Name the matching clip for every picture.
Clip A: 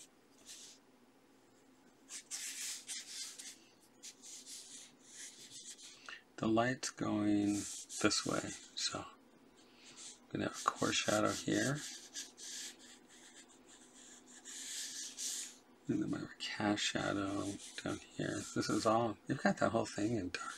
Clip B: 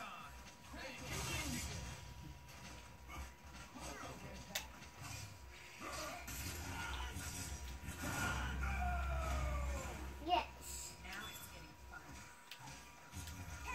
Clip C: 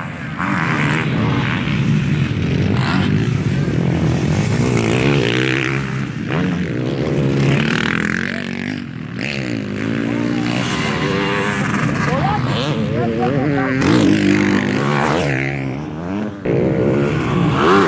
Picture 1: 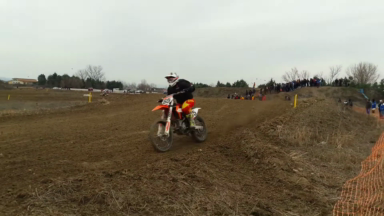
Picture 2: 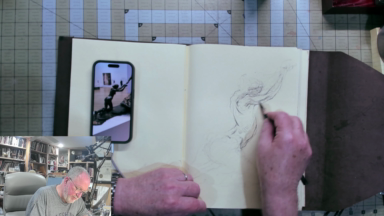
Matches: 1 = C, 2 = A